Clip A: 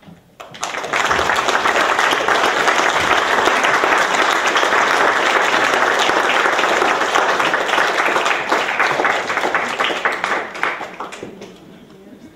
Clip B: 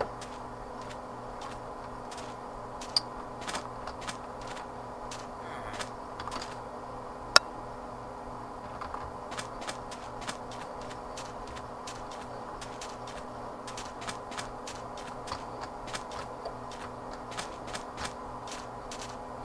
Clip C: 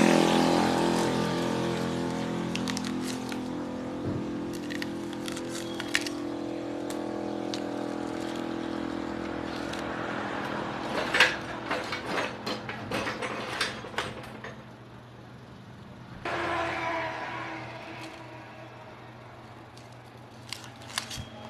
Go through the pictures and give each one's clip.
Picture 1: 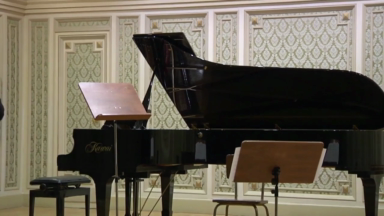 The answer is A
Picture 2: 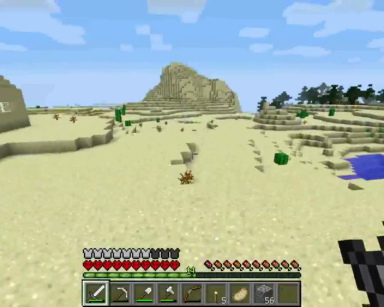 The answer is B